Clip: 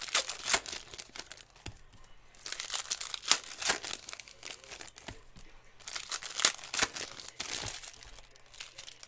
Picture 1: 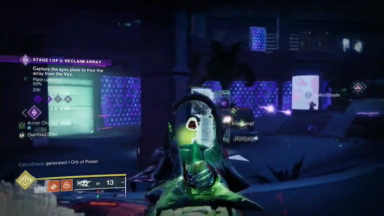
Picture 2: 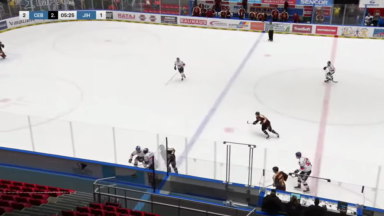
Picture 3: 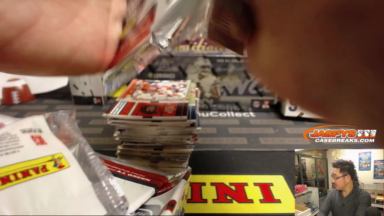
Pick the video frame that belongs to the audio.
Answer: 3